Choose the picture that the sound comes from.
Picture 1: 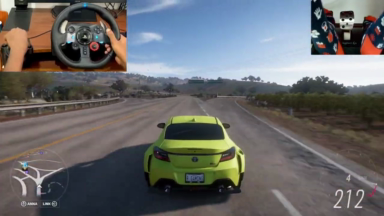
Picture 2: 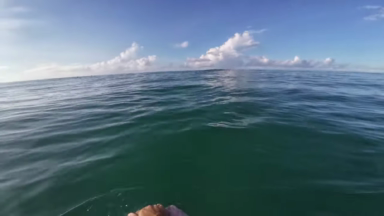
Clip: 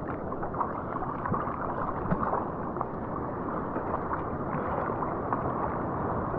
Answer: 2